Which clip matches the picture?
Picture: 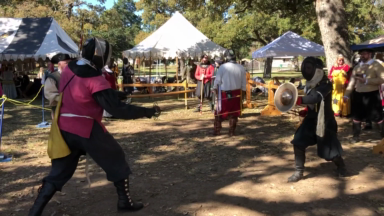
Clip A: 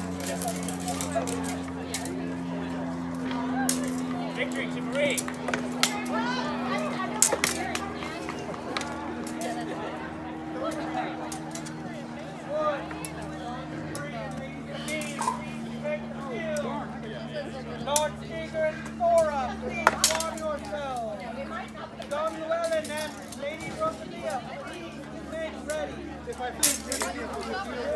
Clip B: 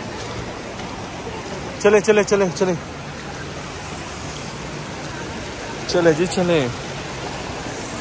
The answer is A